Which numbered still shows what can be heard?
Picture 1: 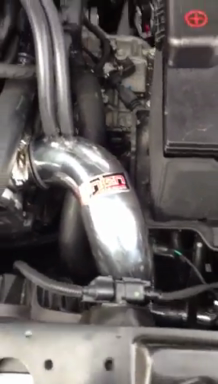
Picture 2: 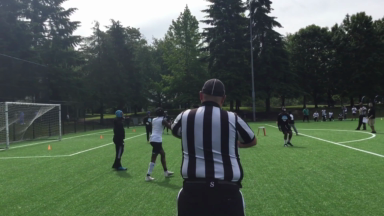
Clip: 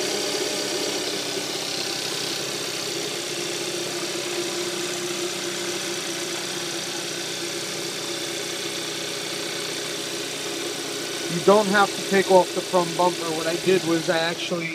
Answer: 1